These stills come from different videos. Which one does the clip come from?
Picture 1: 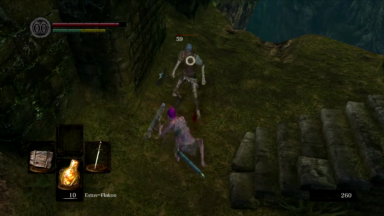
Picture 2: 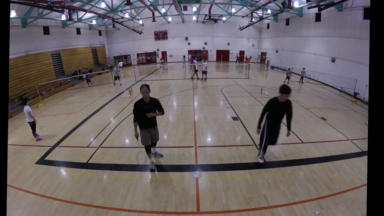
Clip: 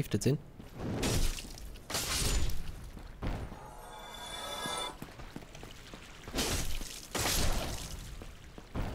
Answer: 1